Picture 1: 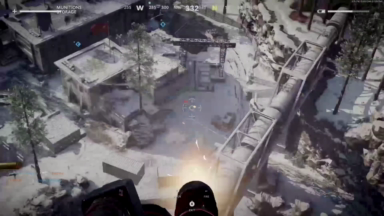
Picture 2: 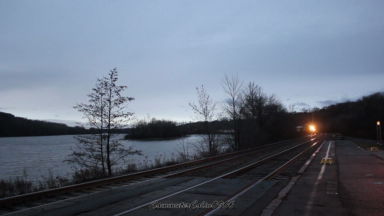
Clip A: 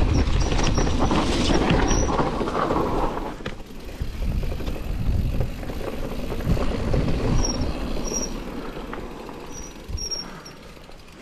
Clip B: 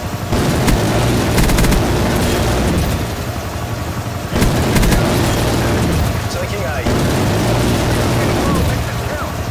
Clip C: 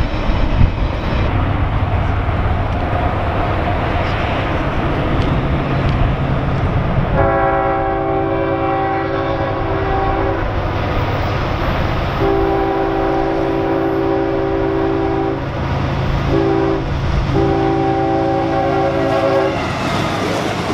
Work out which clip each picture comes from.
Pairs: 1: B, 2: C